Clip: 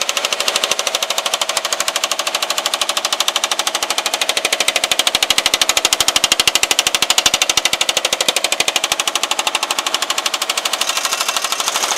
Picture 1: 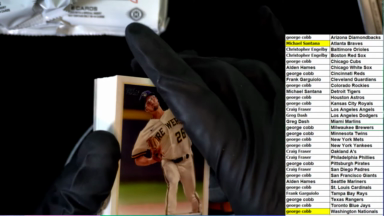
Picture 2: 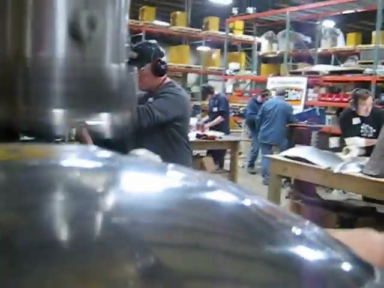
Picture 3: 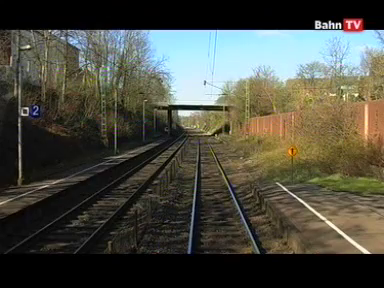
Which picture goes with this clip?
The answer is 2